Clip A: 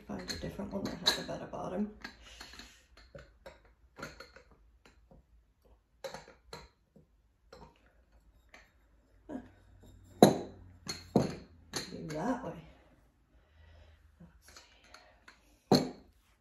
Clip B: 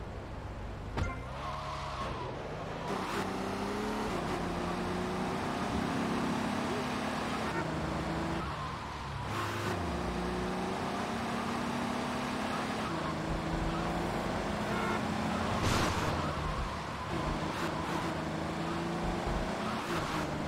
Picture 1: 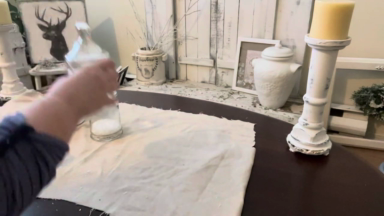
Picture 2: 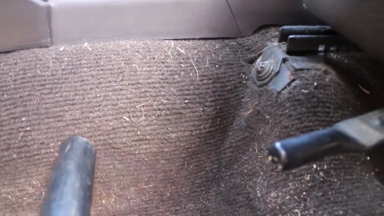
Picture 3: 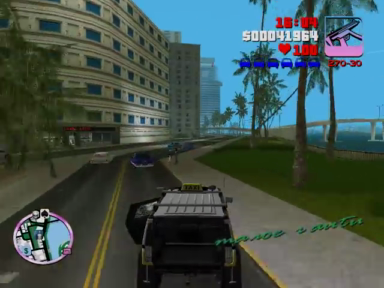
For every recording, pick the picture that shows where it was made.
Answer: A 1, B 3